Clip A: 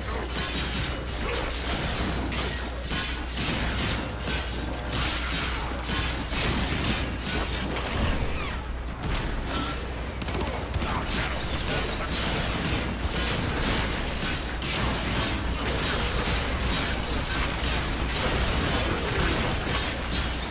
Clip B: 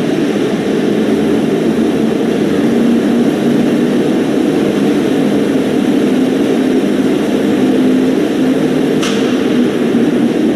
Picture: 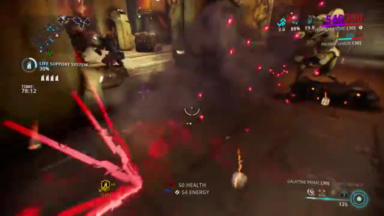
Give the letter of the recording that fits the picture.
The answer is A